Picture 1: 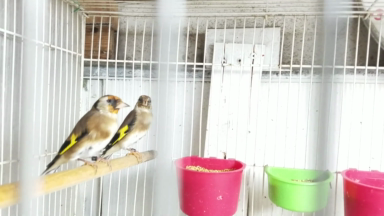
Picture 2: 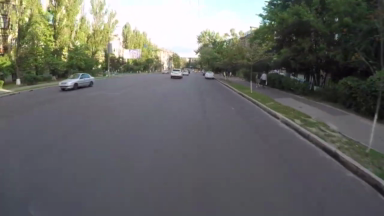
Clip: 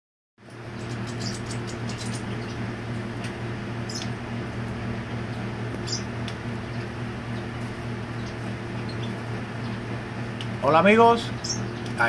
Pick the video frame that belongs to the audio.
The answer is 1